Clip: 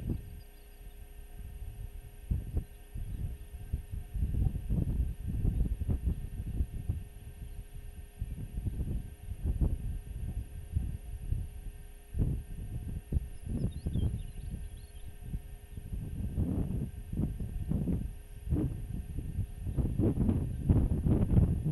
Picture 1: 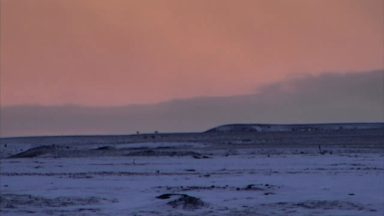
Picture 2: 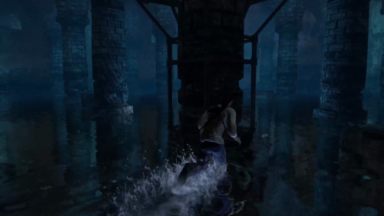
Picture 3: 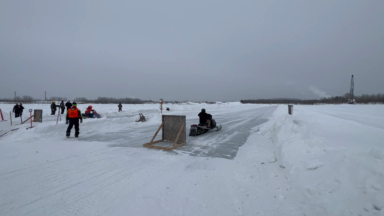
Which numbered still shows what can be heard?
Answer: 1